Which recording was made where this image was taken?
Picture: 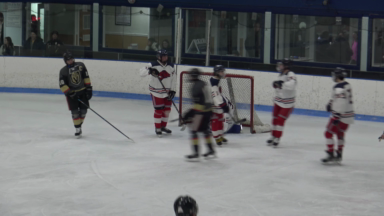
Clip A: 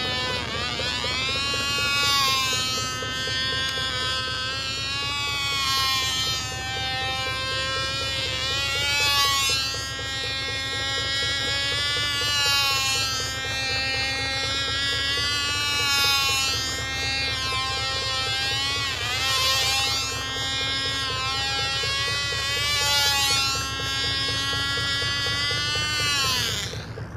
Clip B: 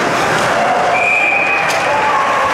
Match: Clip B